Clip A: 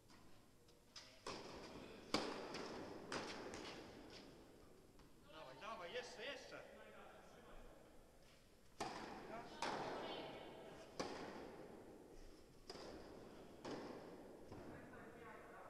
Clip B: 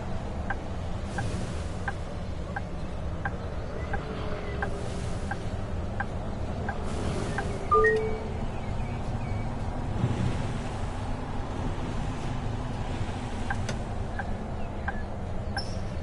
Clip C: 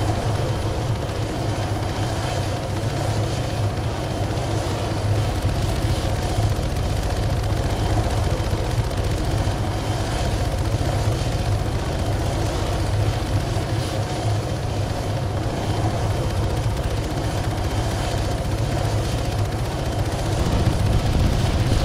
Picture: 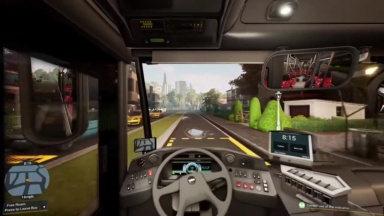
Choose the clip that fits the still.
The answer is B